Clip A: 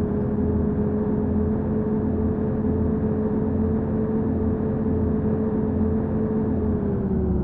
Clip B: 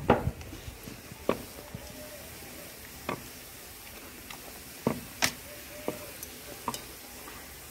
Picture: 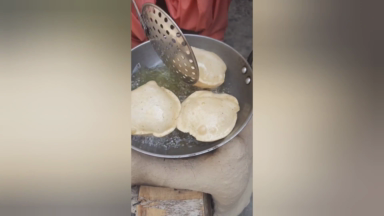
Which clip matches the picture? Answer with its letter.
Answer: B